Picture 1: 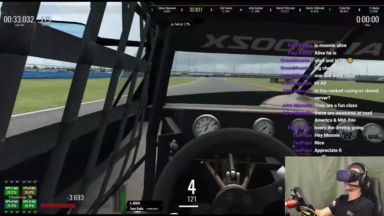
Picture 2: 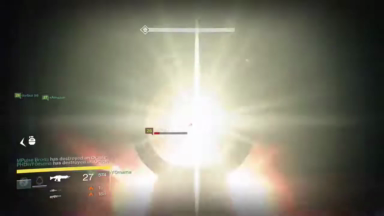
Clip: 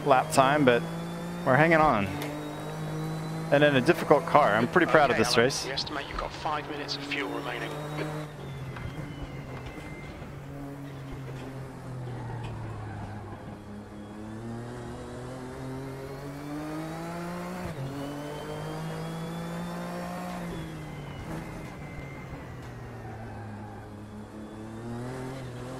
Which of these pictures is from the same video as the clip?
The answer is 1